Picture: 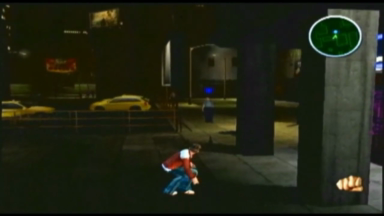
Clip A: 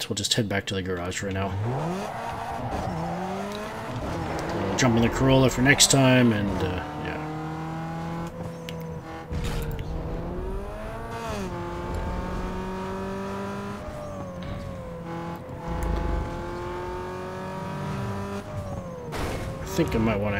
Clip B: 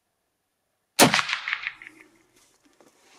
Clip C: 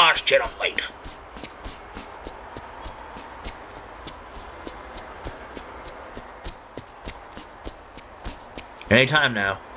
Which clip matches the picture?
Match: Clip C